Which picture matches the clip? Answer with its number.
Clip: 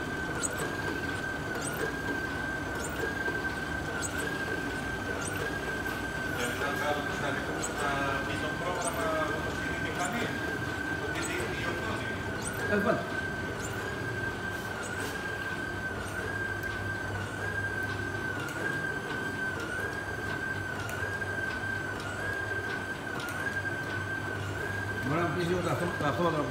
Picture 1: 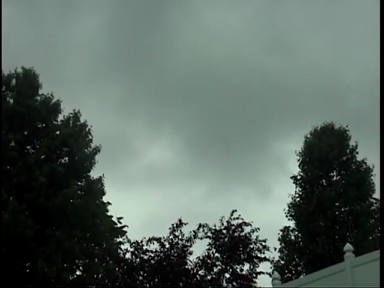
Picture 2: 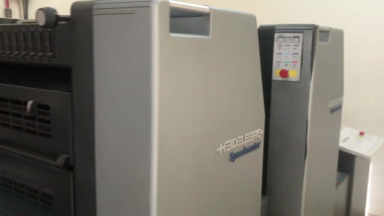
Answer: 2